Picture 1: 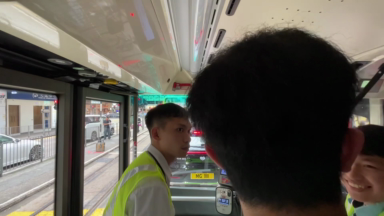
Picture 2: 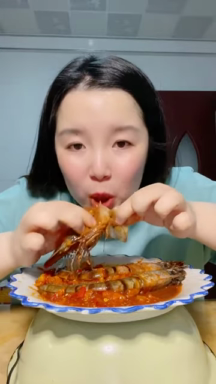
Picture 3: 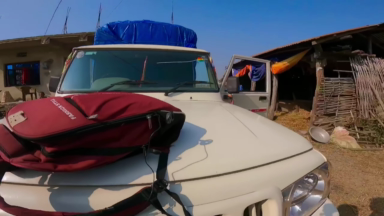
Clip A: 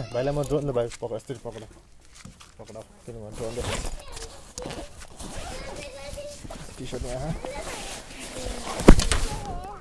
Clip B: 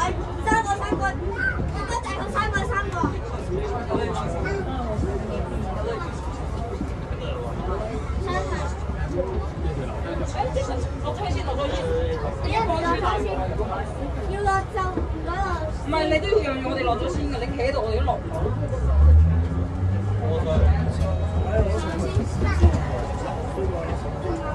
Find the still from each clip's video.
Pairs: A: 3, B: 1